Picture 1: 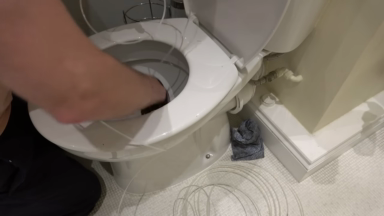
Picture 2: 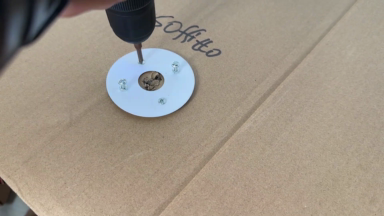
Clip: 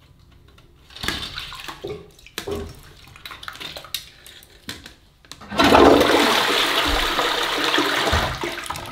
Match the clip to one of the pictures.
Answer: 1